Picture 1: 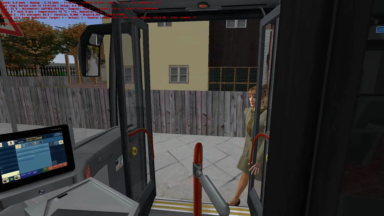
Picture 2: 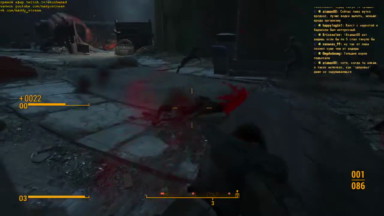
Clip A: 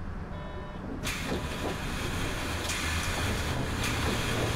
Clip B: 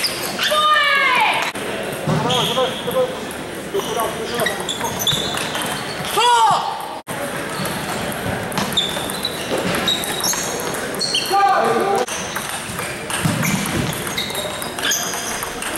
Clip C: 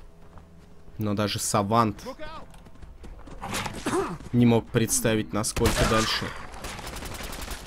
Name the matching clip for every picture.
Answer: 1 A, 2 C